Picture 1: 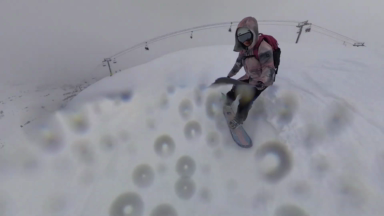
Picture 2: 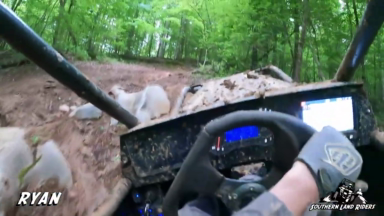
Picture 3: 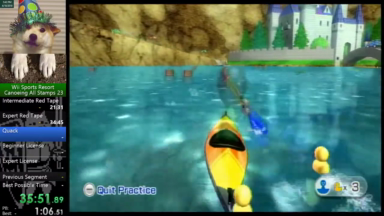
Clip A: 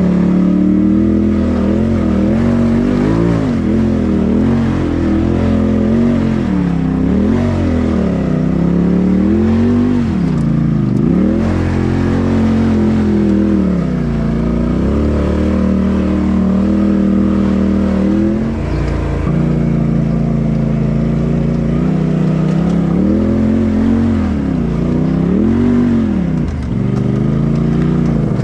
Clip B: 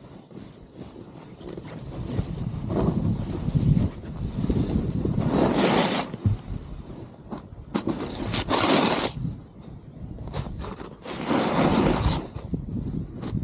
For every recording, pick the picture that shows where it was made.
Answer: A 2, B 1